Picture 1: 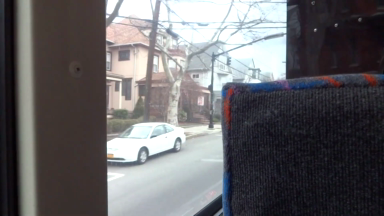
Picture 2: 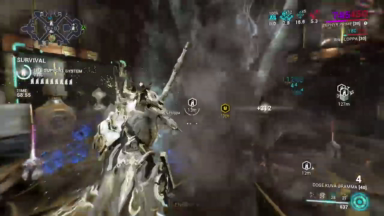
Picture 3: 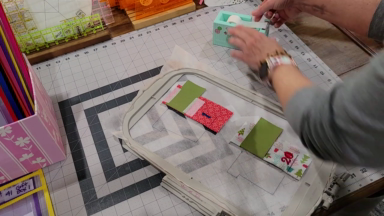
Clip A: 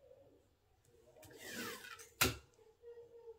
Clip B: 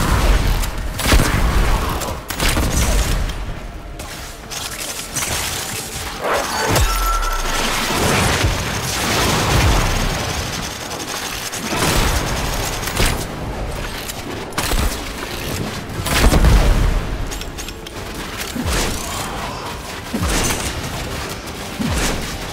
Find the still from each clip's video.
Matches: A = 3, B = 2